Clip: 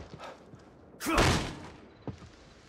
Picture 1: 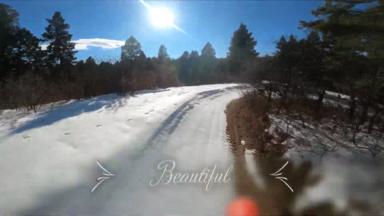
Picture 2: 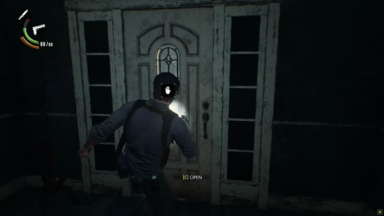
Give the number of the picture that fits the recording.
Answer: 2